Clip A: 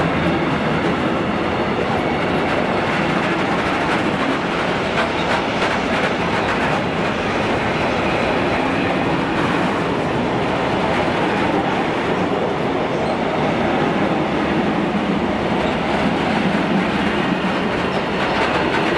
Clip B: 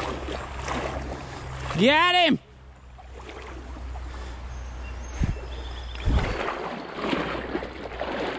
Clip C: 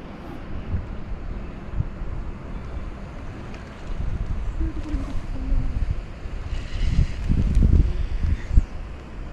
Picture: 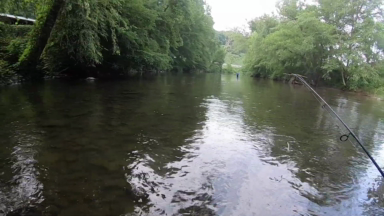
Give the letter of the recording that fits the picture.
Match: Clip B